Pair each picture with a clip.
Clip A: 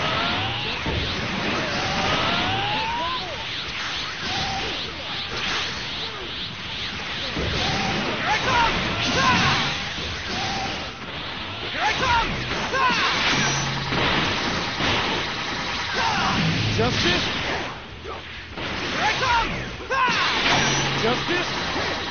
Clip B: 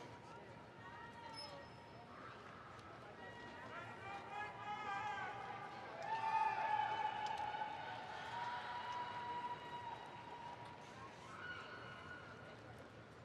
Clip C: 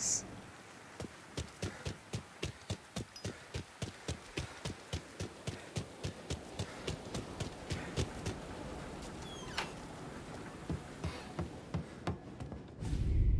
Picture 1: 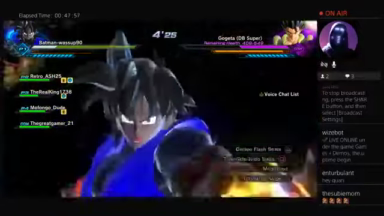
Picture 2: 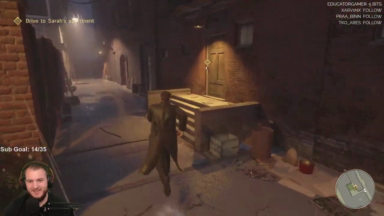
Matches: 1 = A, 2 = C